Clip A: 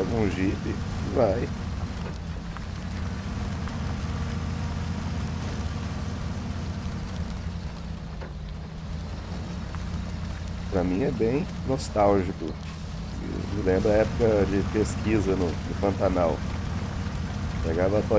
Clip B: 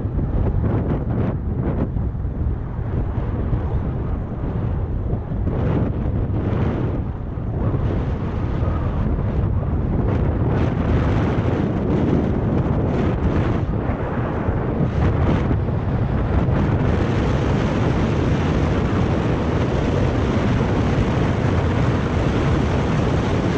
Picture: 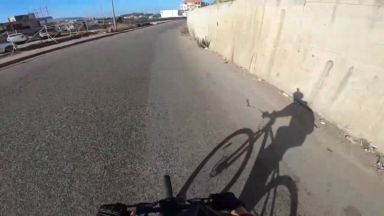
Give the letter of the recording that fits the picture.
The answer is B